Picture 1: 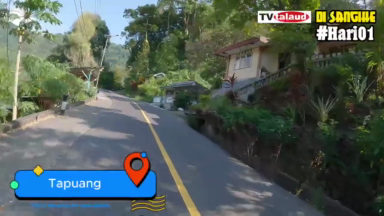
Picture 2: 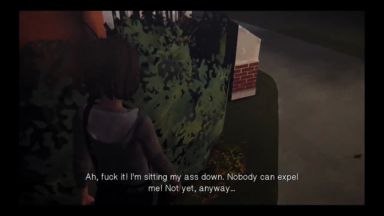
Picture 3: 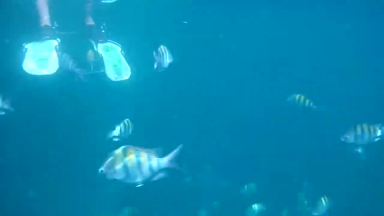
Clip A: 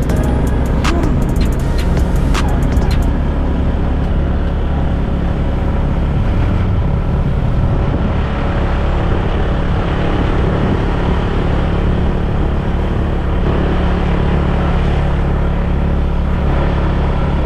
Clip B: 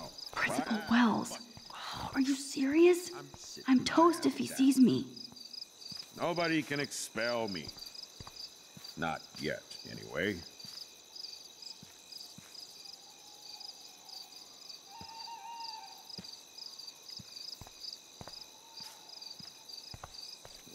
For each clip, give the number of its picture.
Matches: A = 1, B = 2